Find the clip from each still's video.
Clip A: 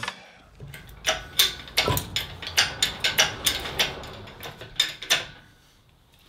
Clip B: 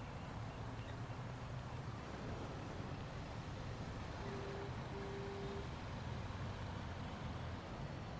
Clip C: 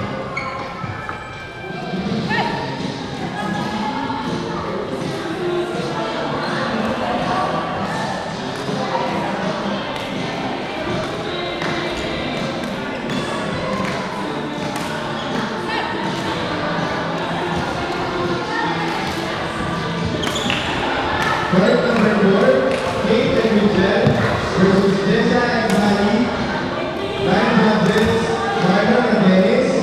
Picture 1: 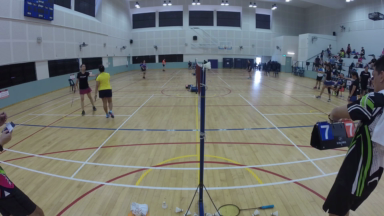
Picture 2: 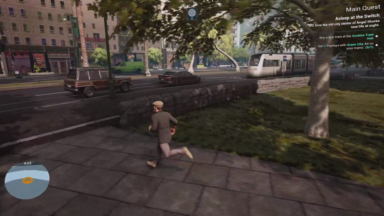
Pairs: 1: C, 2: B